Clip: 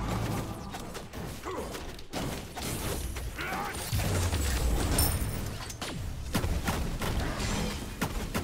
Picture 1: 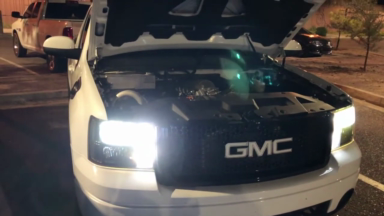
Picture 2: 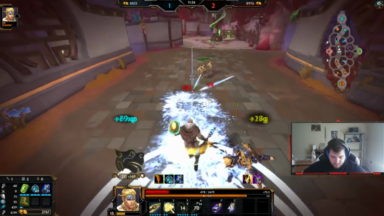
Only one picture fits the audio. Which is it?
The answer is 2